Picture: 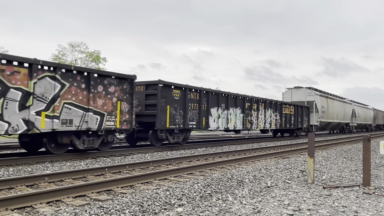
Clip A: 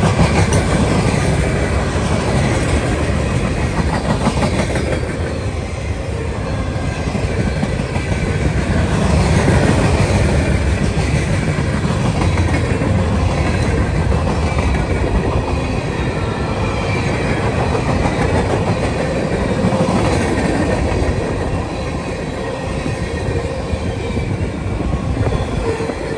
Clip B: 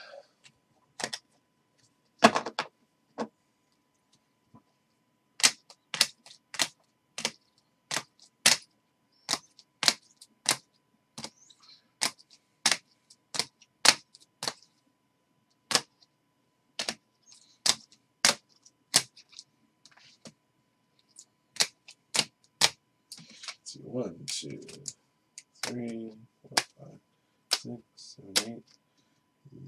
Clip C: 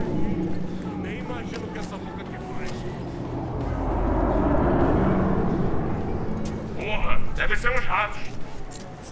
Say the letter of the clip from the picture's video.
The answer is A